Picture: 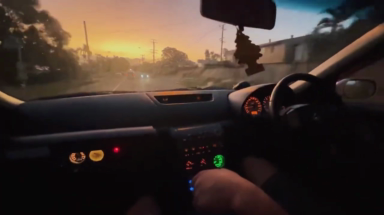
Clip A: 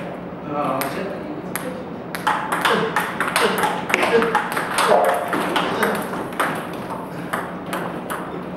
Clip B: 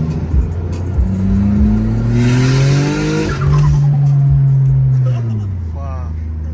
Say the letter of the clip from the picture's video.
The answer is B